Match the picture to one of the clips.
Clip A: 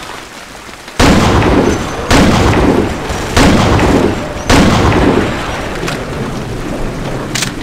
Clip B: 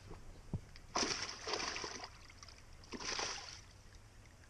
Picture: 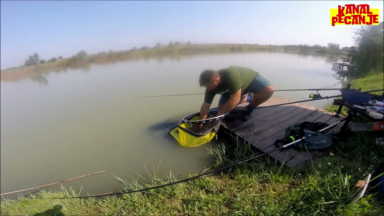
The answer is B